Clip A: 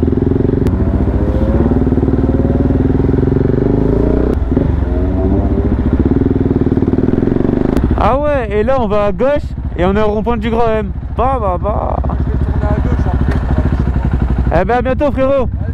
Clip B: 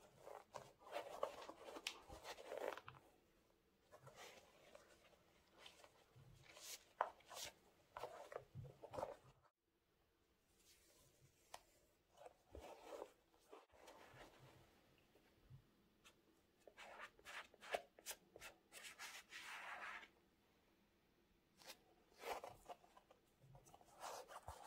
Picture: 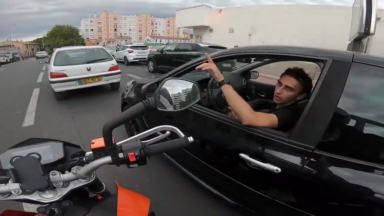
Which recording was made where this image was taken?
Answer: A